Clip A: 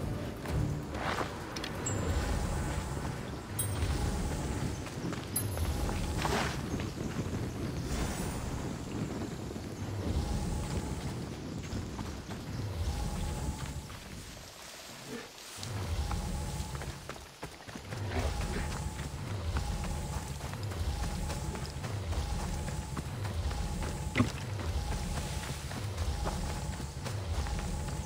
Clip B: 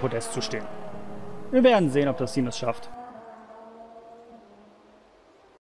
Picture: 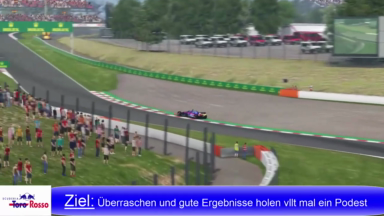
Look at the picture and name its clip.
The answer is B